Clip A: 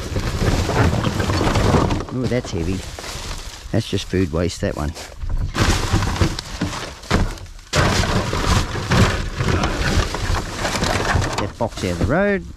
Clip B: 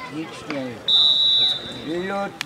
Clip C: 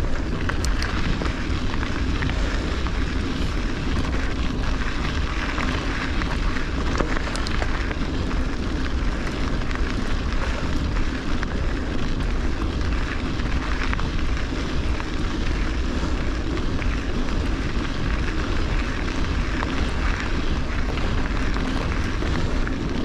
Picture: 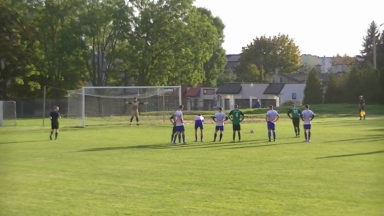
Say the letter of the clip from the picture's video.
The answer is B